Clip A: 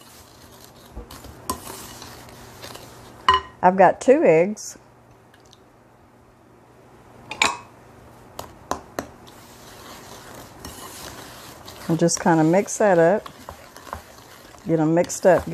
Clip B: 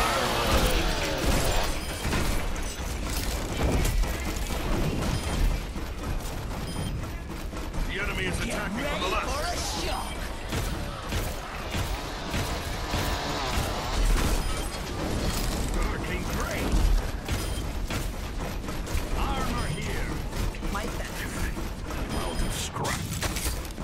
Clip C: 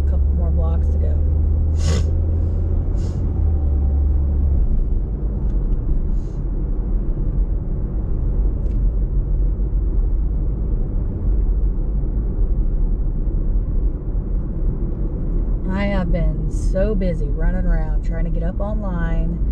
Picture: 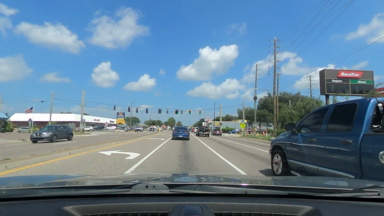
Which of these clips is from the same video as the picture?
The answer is C